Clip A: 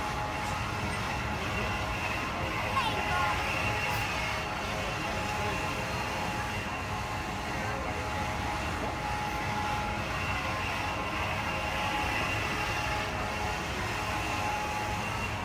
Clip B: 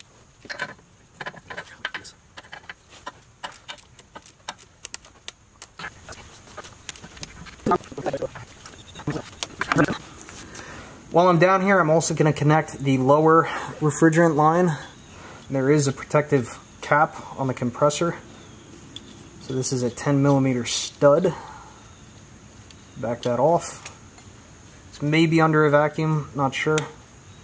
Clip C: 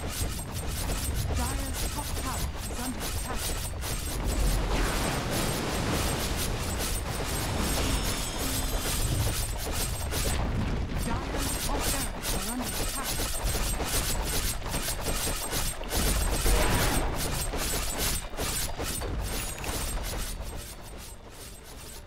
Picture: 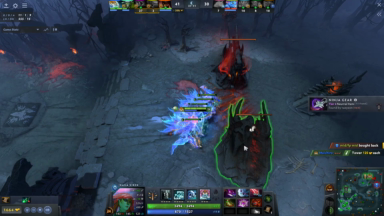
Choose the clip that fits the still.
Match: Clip C